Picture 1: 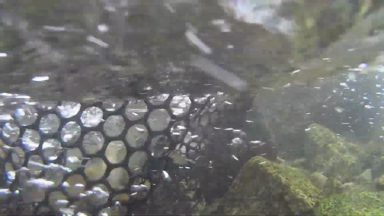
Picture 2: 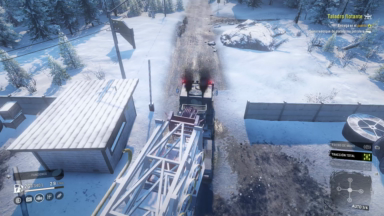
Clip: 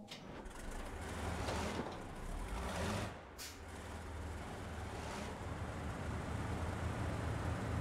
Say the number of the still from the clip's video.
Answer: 2